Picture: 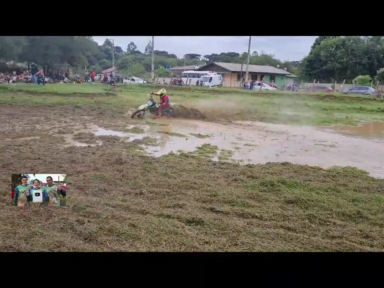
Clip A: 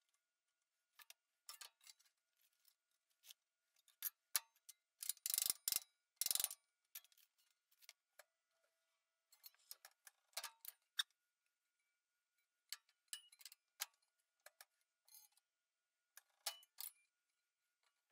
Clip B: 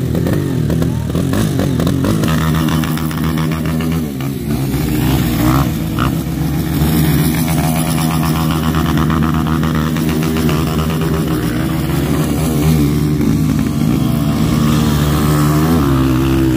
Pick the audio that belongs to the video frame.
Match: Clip B